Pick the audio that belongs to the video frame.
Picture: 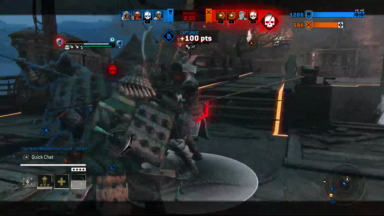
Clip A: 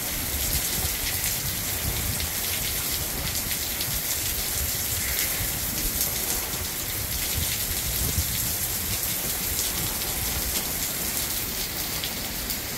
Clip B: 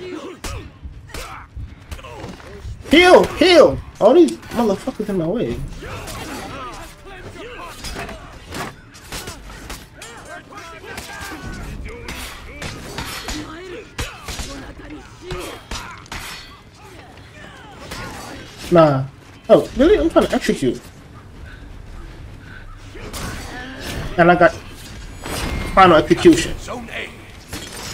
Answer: B